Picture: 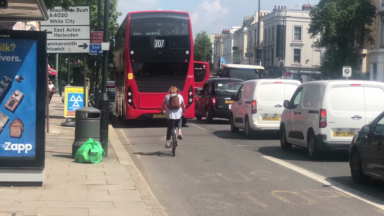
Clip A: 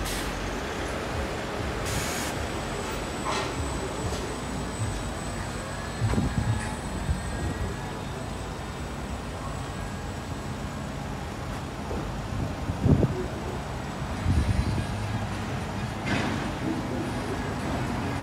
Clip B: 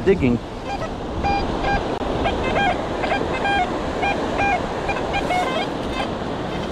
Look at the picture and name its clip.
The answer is A